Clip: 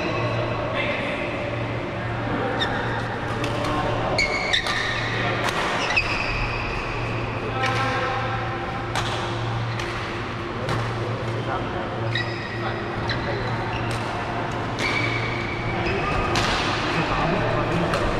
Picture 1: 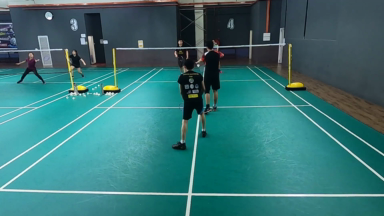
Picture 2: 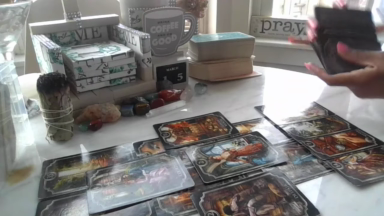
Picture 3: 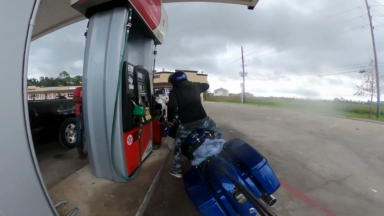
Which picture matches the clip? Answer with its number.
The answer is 1